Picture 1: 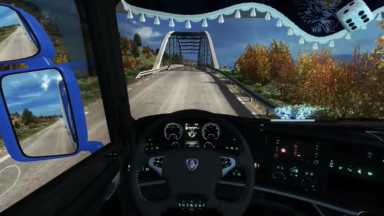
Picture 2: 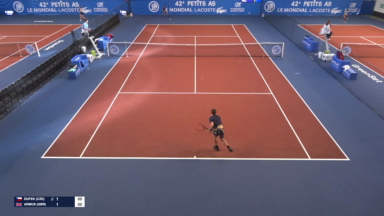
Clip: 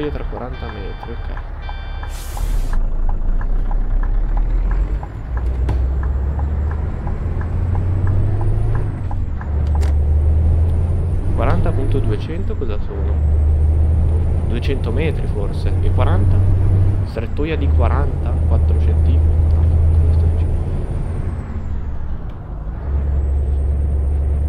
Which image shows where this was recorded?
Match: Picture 1